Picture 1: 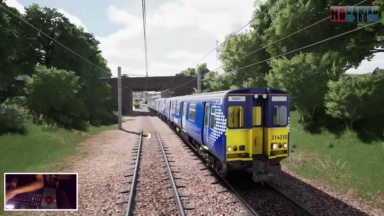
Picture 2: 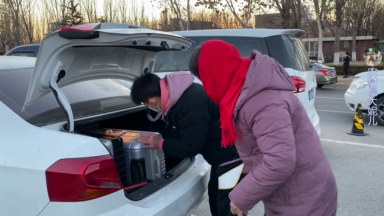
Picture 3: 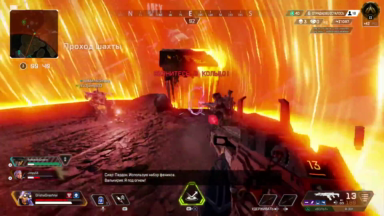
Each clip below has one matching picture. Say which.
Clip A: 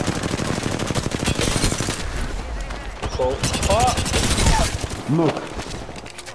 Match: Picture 3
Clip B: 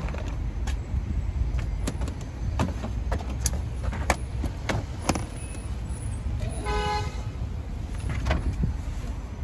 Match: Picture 2